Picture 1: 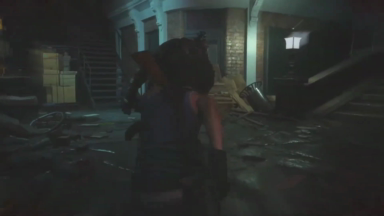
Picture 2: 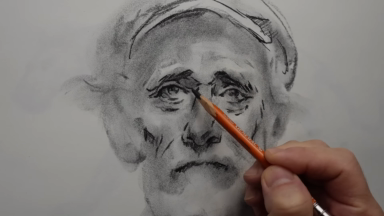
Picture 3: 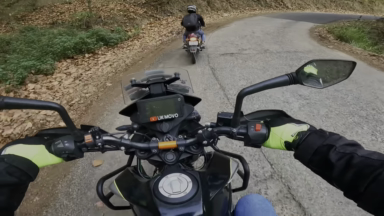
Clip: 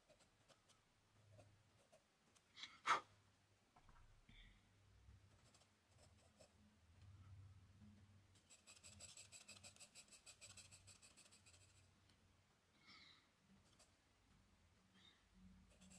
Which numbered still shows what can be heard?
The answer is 2